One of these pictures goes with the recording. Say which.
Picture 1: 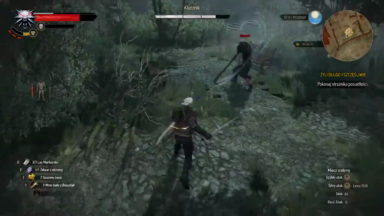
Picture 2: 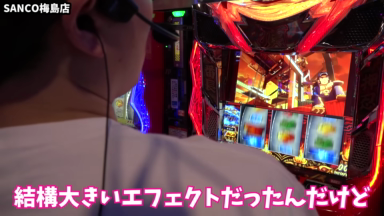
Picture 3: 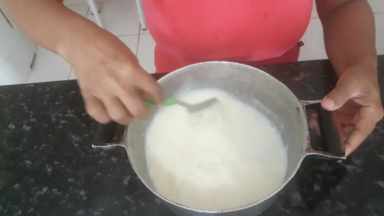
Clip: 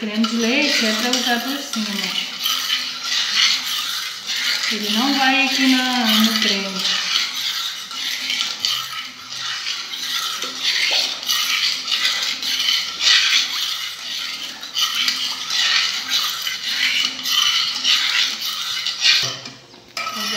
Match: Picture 3